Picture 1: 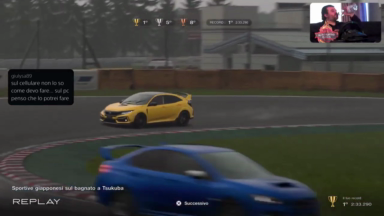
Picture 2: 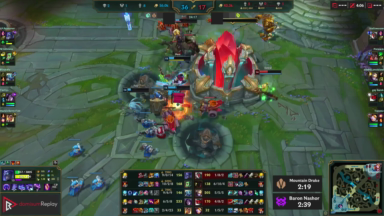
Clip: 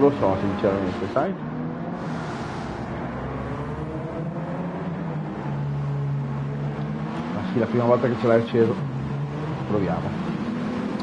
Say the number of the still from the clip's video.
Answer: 1